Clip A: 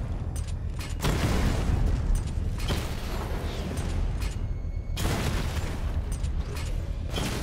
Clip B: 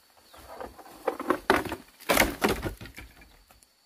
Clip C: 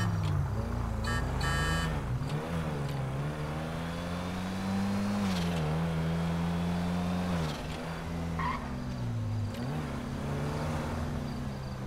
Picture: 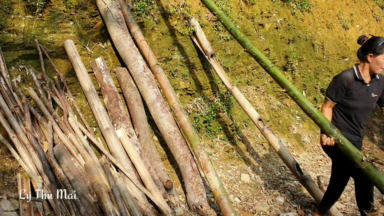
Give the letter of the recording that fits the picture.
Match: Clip B